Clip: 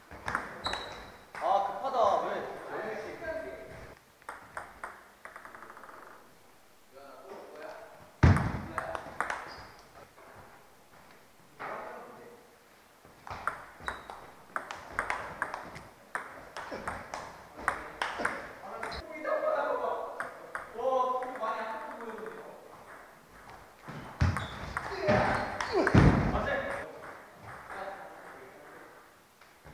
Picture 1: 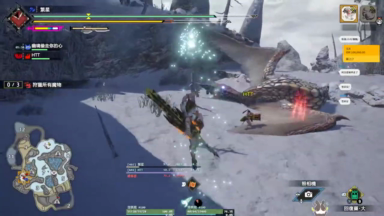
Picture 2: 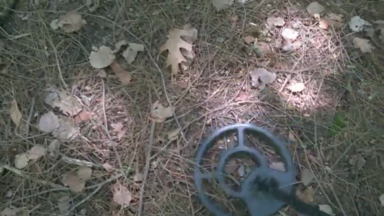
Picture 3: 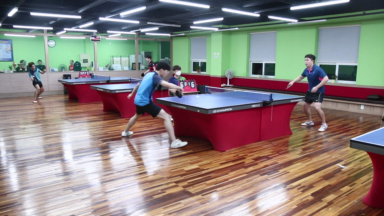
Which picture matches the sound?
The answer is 3